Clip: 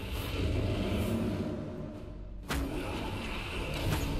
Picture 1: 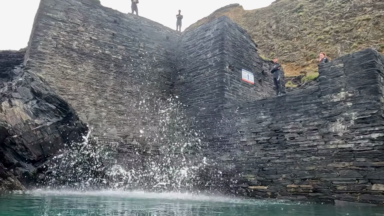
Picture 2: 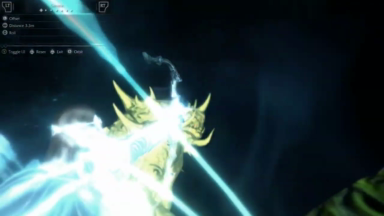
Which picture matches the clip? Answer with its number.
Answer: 2